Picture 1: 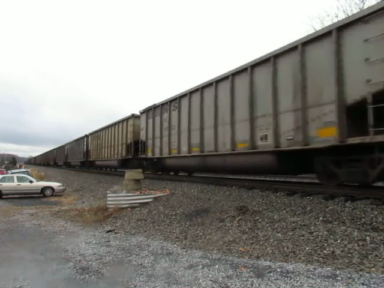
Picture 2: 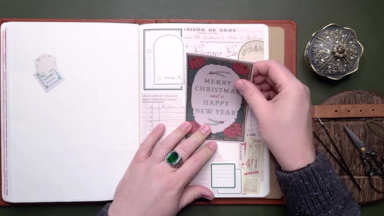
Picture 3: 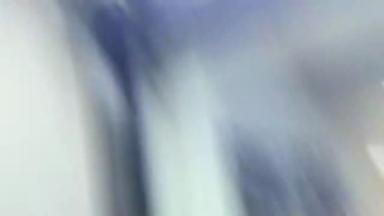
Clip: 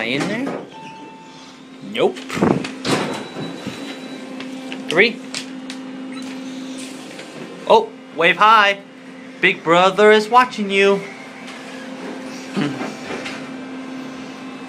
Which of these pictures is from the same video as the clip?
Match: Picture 3